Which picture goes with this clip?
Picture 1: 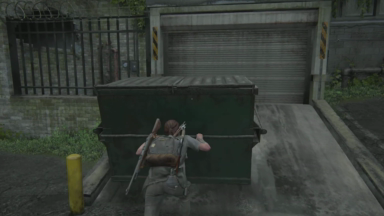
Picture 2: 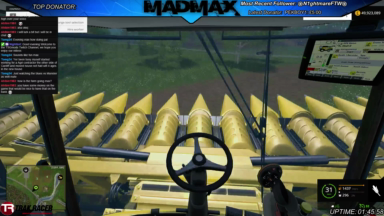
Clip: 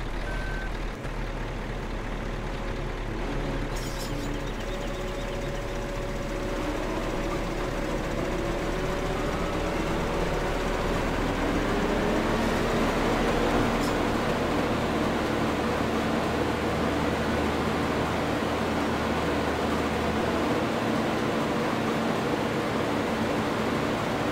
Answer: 2